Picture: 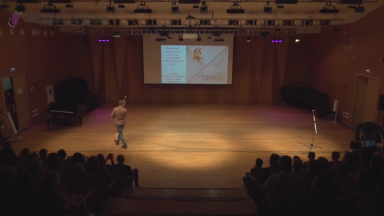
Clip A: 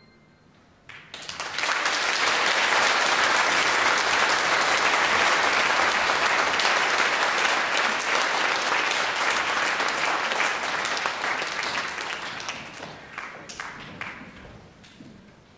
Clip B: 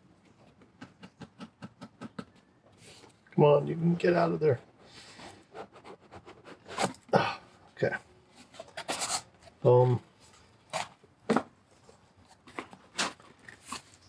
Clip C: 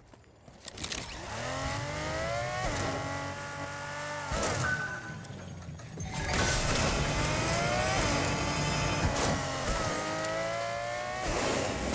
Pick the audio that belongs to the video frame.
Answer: A